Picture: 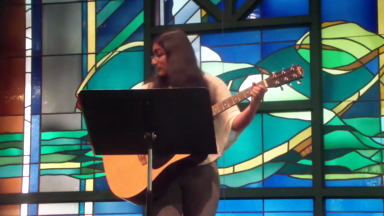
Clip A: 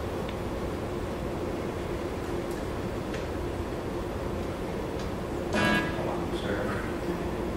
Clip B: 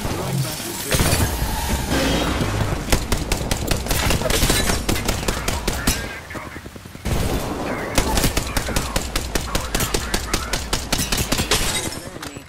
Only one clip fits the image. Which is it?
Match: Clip A